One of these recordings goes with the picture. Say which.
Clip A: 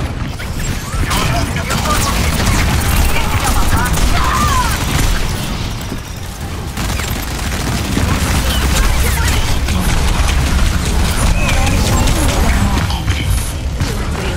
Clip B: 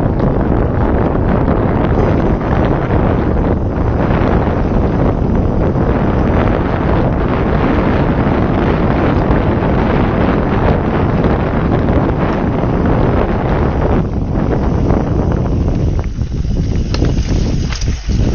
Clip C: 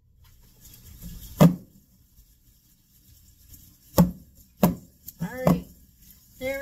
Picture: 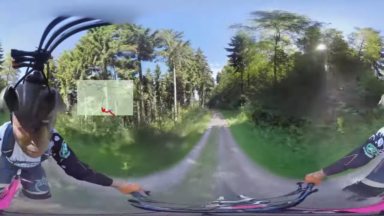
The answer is B